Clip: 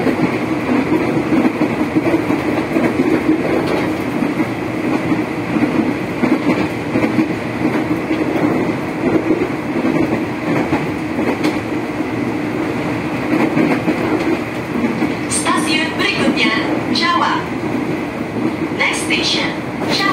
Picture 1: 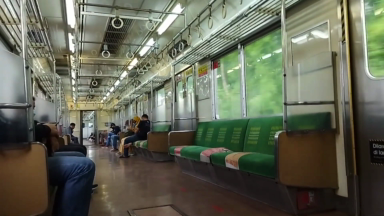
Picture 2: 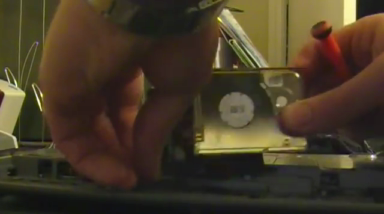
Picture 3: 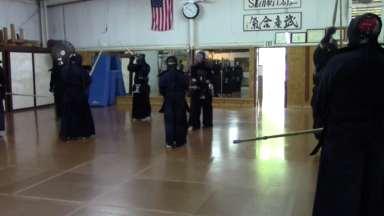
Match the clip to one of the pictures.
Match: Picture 1